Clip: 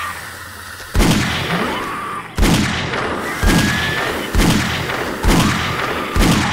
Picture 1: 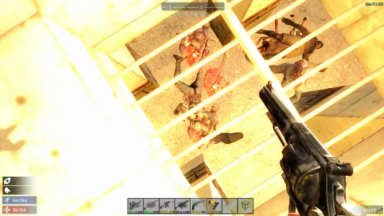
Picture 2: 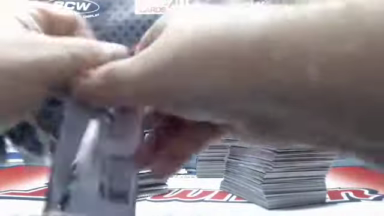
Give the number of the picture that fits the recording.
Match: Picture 1